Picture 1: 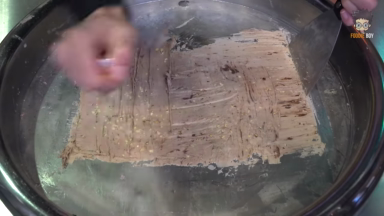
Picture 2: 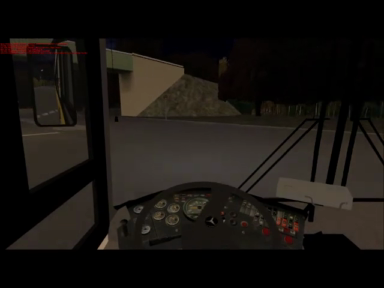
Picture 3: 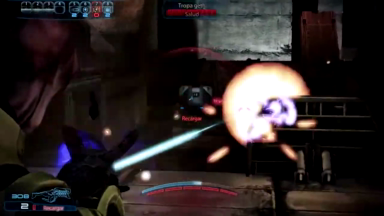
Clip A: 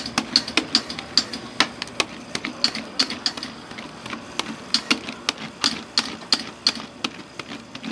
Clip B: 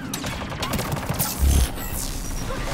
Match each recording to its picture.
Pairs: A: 1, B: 3